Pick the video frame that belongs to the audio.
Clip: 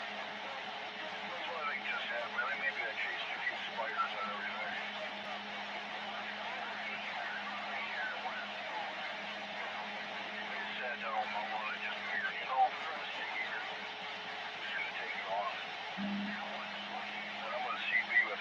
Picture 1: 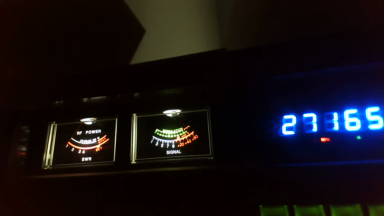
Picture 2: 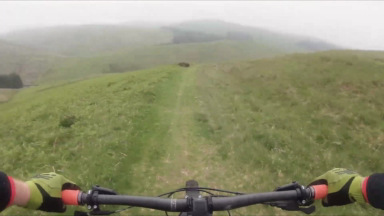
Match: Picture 1